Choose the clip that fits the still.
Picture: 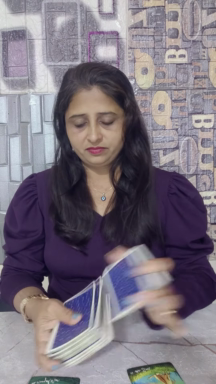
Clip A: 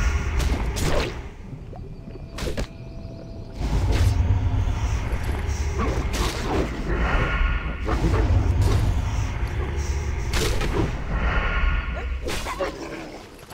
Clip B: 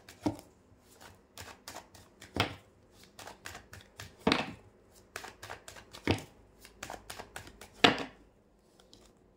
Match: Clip B